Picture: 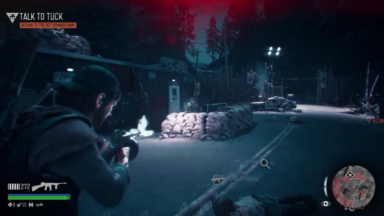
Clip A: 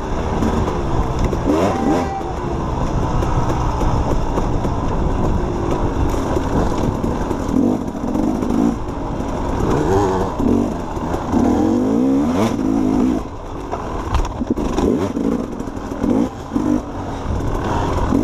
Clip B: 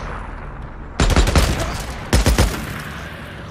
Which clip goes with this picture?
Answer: B